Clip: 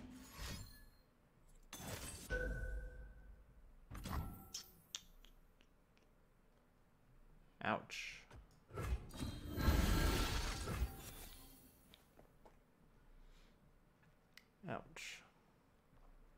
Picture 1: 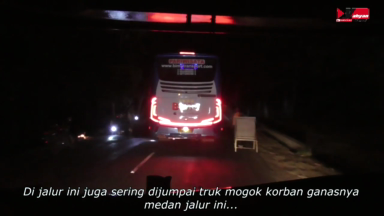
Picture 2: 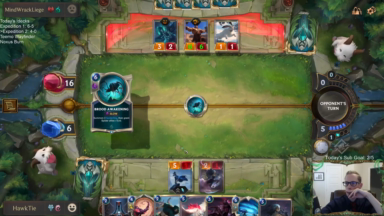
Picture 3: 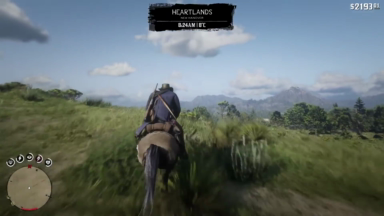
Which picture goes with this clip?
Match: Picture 2